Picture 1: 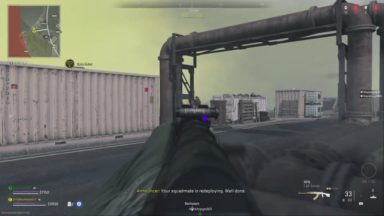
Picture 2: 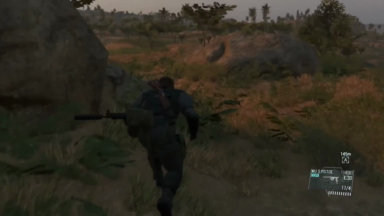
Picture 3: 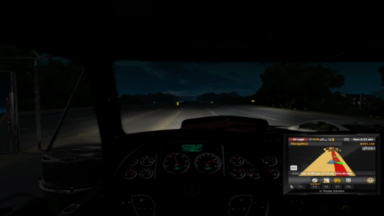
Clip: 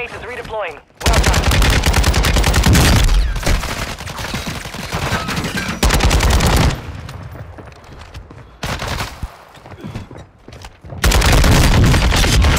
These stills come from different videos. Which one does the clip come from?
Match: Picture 1